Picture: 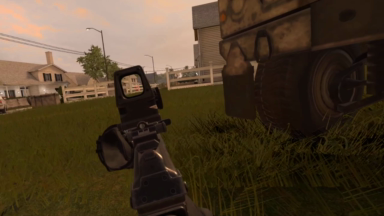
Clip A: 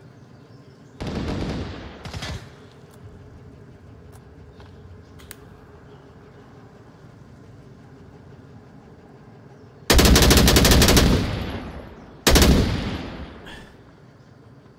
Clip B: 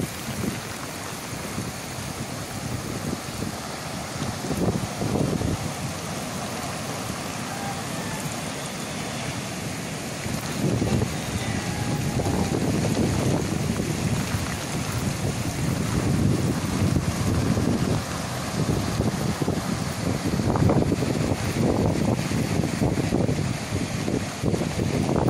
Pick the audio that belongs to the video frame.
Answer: A